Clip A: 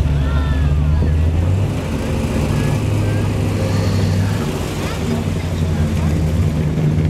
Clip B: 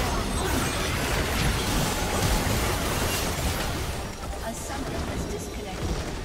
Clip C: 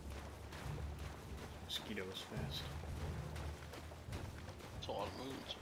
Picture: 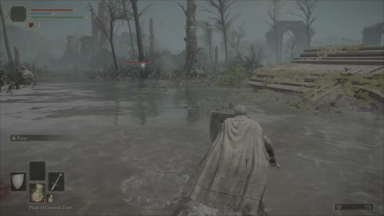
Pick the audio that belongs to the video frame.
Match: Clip C